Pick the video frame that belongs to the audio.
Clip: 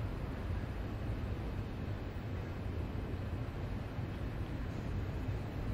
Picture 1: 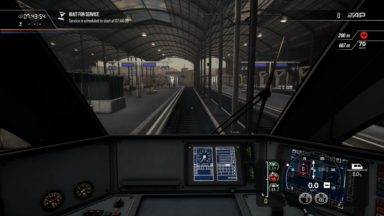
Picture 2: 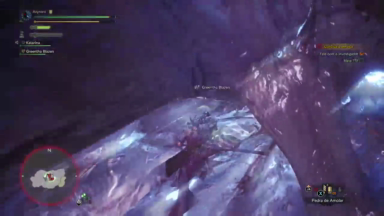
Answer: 1